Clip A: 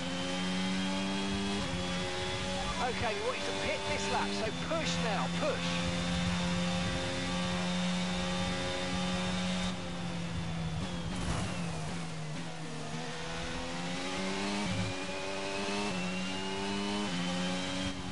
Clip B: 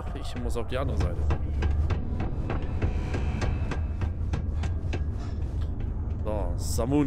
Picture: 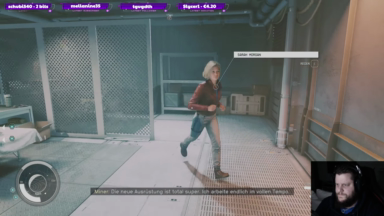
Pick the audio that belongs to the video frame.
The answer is B